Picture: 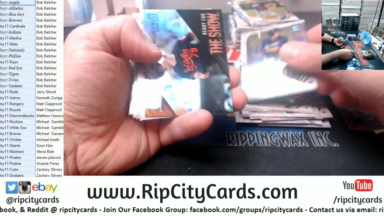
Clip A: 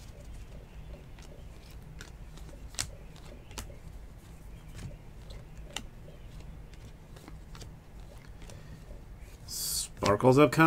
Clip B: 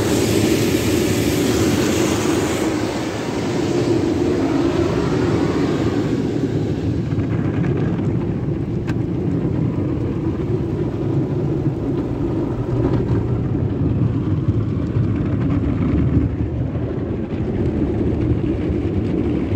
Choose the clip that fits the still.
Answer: A